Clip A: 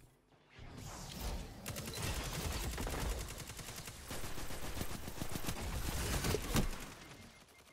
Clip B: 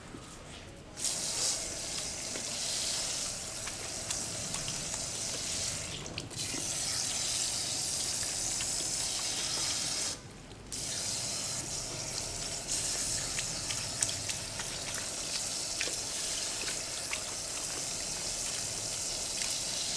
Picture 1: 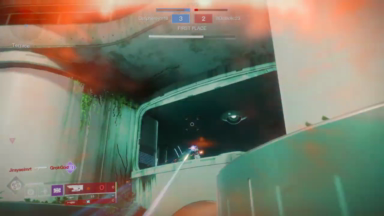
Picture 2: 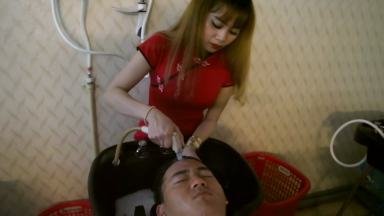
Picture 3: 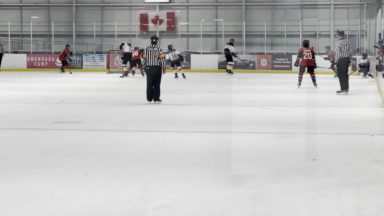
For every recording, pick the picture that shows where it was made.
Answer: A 1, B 2